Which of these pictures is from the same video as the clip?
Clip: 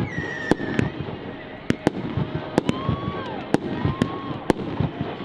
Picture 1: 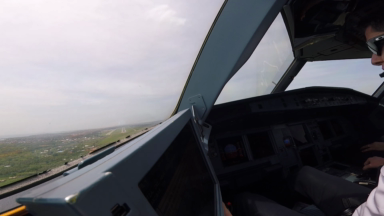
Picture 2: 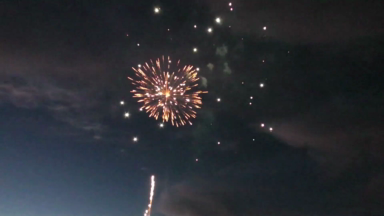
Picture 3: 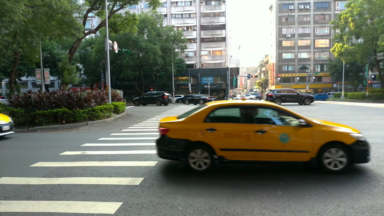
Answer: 2